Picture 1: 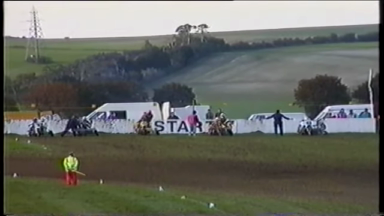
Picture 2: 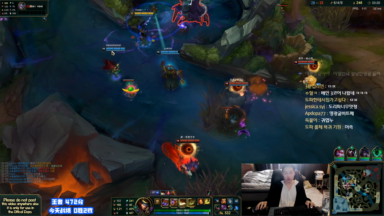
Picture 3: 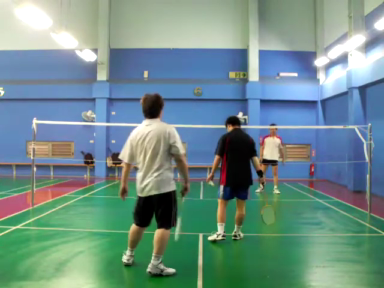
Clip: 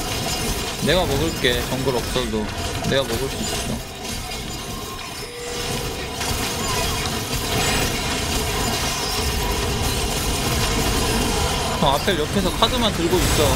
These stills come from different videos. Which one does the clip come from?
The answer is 2